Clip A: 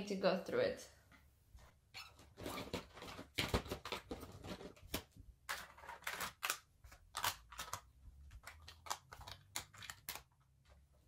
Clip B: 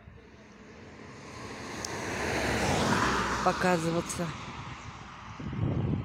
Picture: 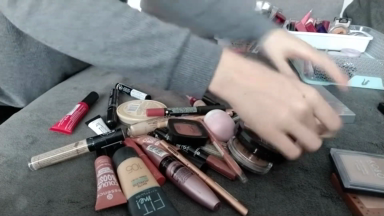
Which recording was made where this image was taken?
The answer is A